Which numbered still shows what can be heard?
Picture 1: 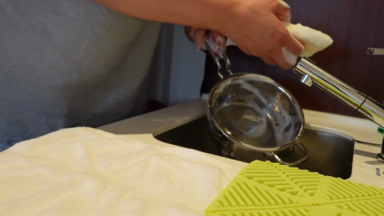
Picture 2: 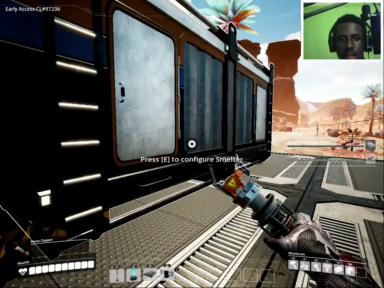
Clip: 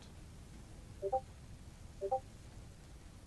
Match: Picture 2